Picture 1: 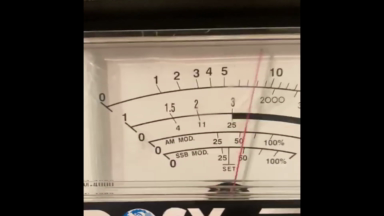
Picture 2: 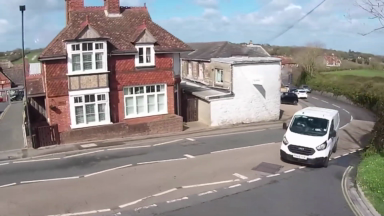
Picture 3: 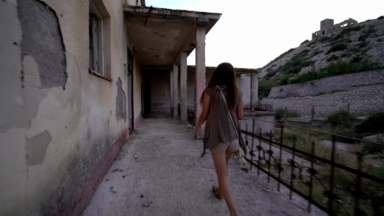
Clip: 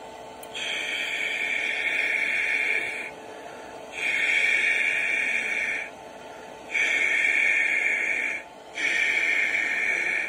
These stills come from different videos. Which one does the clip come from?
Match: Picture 1